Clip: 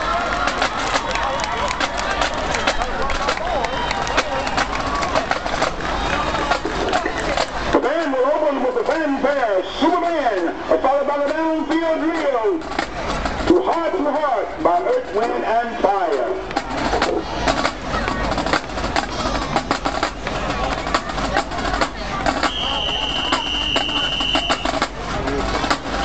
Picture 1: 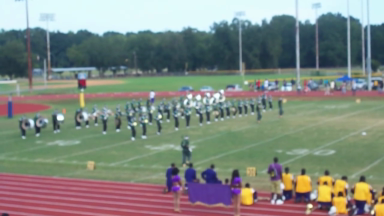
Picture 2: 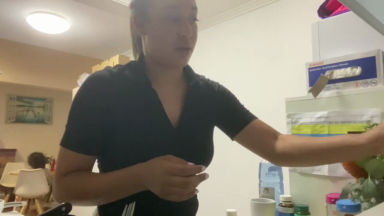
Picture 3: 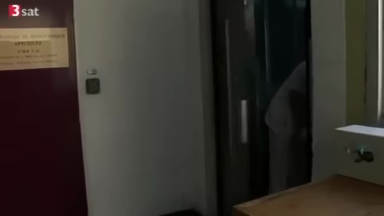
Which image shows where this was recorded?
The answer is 1